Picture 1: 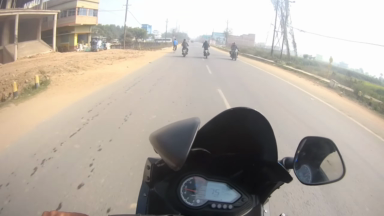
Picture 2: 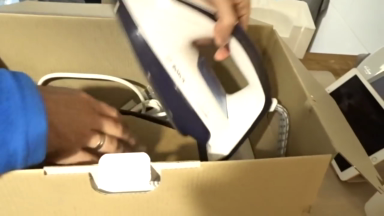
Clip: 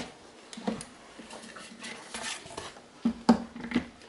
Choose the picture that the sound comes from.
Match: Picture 2